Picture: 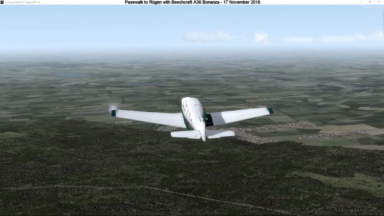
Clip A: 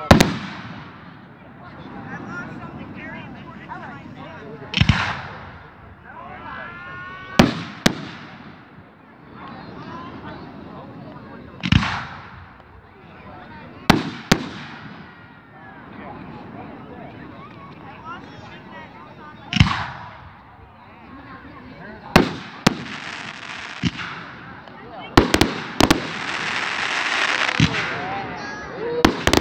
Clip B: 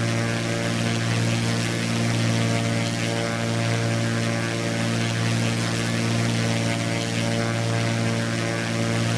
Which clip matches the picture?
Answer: B